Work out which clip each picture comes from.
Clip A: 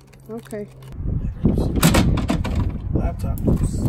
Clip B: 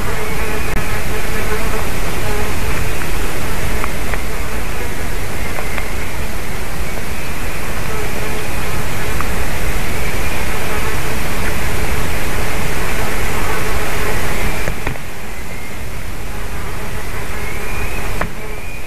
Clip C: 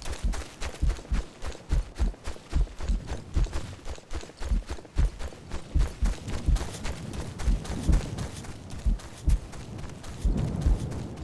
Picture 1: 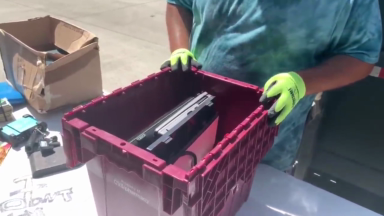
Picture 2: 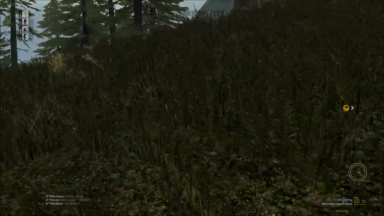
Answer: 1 A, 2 C